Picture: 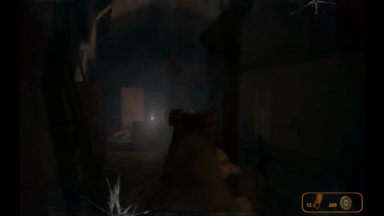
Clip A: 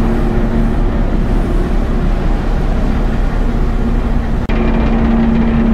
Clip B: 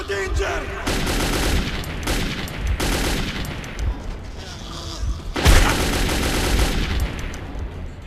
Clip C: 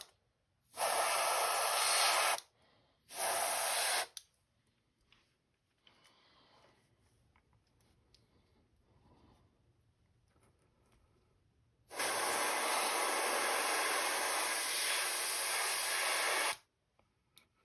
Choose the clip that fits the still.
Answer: B